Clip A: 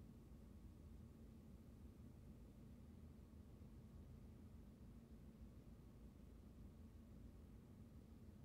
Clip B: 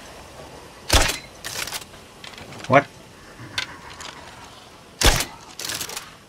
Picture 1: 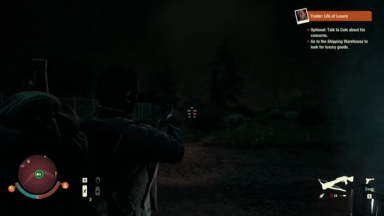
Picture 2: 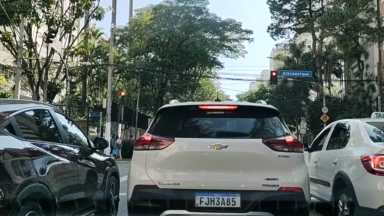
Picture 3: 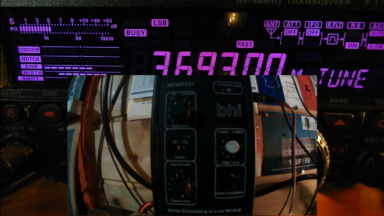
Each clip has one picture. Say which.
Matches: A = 2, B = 1